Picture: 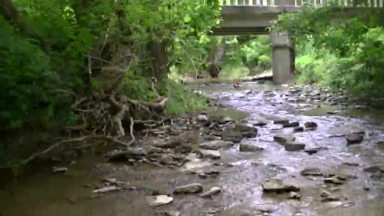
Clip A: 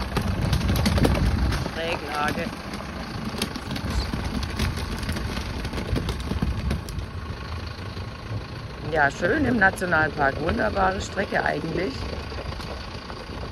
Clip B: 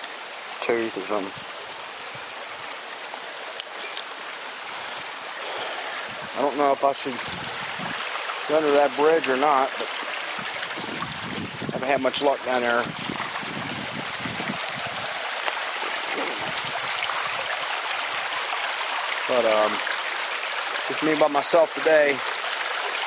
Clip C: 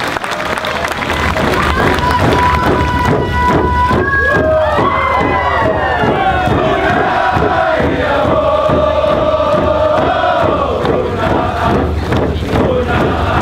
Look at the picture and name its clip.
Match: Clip B